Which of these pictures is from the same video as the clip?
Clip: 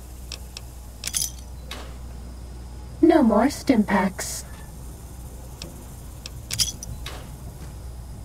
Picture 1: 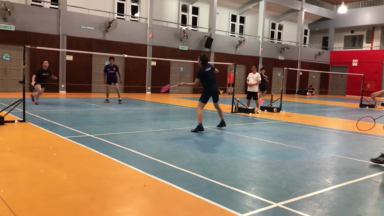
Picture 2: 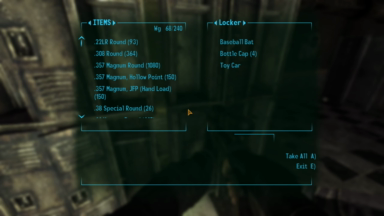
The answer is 2